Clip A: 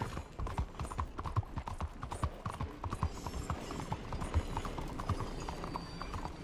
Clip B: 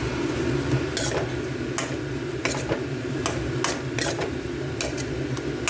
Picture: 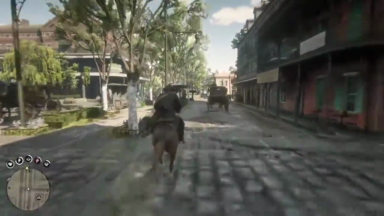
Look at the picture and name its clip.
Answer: A